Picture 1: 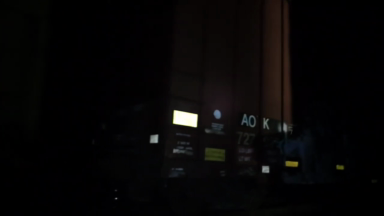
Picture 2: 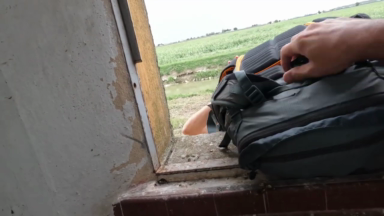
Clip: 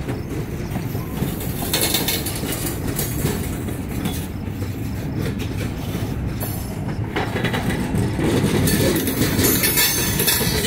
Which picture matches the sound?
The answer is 1